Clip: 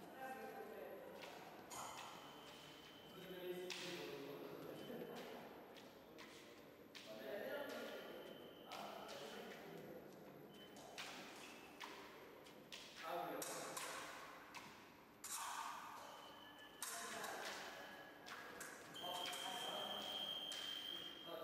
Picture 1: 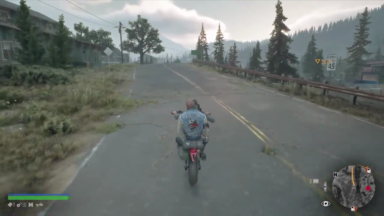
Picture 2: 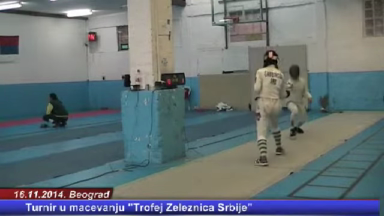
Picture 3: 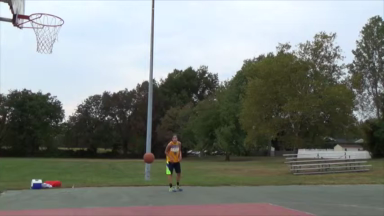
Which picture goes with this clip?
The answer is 2